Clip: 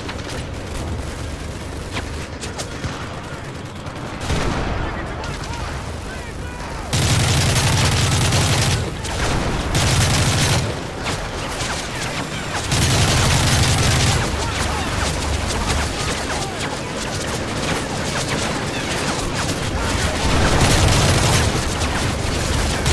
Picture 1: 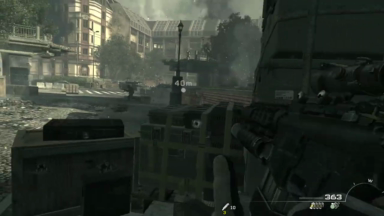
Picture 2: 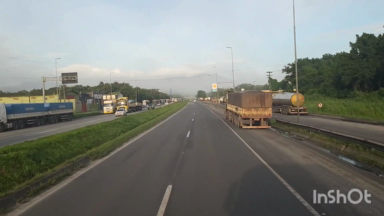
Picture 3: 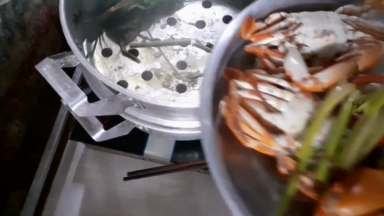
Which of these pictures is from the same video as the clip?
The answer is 1